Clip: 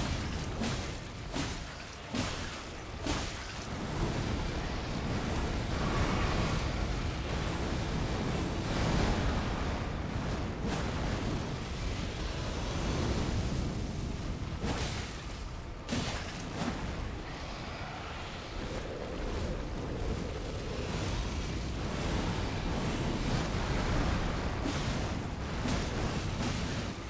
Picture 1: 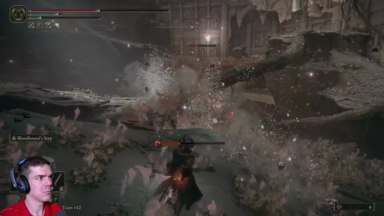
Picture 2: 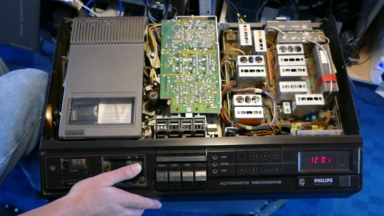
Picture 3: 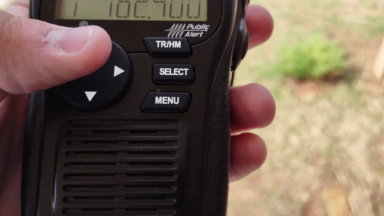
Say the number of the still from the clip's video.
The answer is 1